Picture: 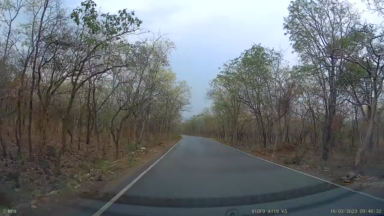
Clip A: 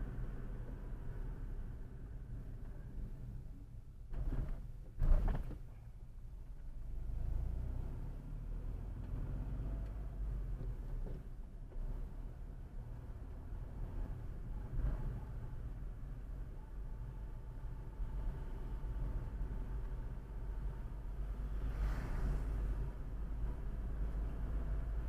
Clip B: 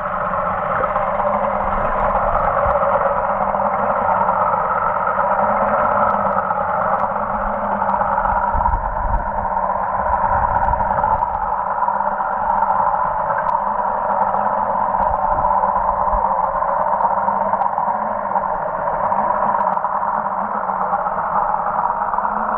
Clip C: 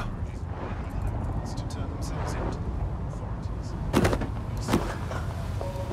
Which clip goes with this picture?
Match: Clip A